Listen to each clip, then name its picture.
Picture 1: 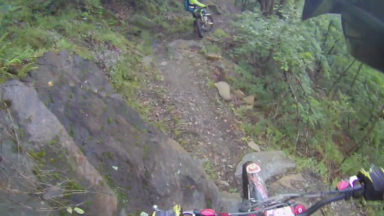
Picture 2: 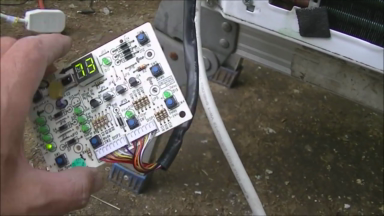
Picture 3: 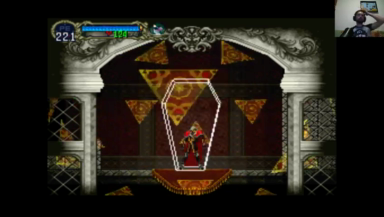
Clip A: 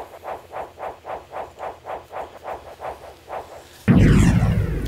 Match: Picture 3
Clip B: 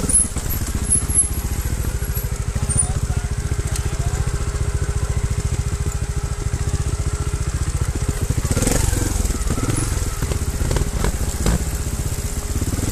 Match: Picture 1